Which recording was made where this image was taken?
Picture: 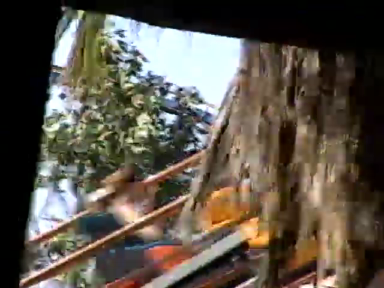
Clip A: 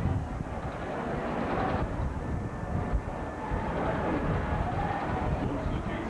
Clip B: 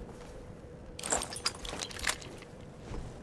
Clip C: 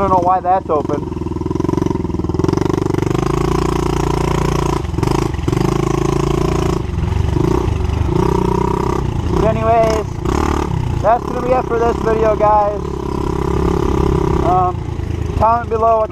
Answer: A